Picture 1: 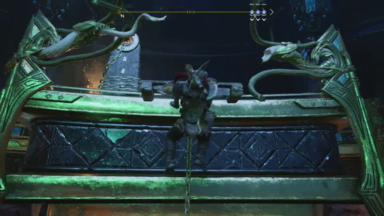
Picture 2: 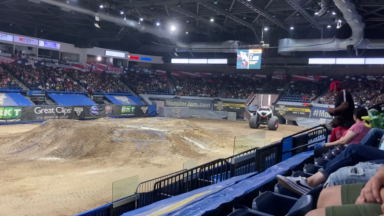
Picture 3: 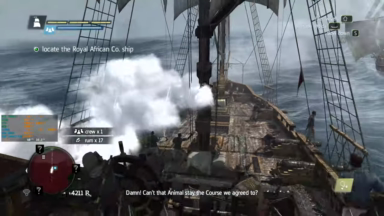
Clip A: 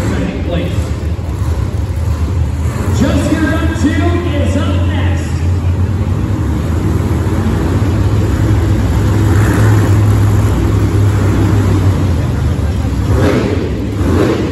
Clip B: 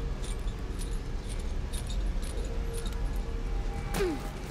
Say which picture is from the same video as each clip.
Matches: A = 2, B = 1